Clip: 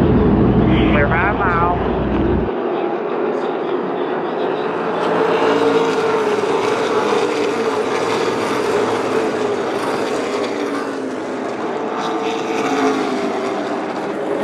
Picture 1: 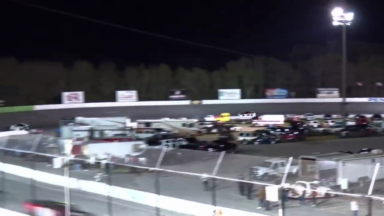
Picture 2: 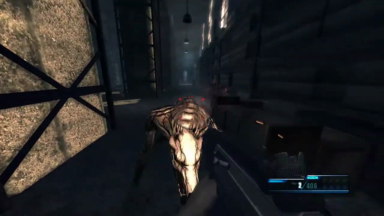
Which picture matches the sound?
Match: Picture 1